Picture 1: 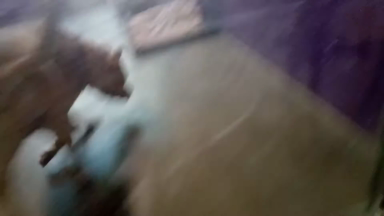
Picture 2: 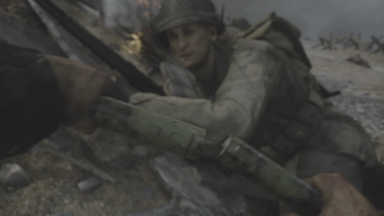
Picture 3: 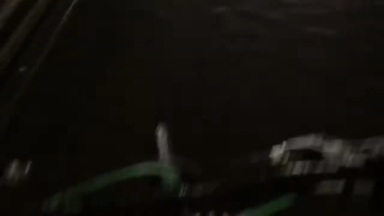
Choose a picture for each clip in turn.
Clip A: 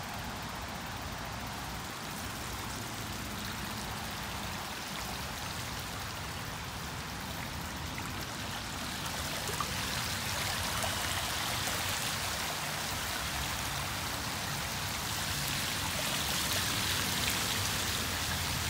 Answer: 3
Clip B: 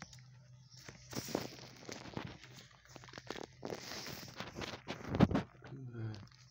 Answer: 1